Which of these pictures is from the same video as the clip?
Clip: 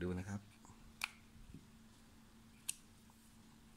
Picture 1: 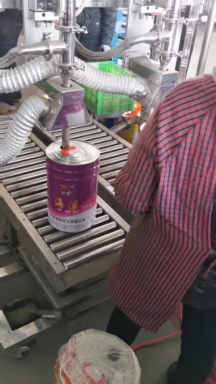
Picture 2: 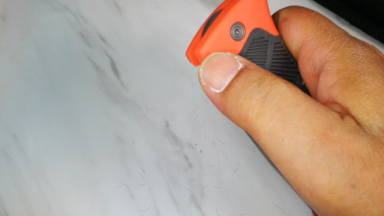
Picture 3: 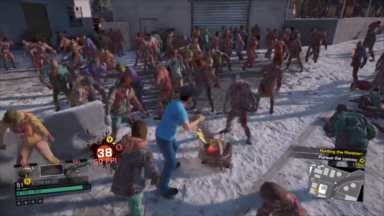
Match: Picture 2